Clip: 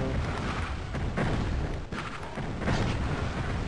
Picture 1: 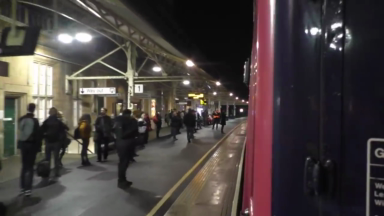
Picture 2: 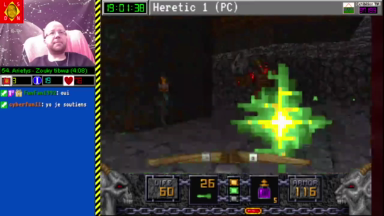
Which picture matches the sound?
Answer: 2